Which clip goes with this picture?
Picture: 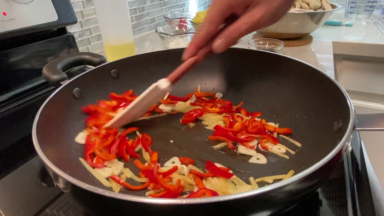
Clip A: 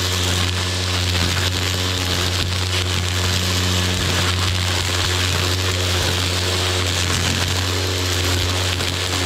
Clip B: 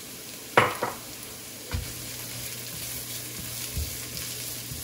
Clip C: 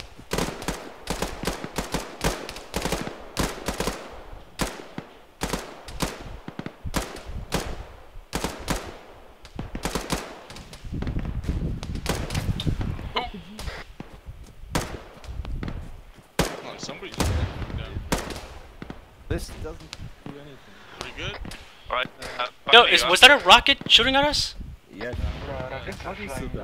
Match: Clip B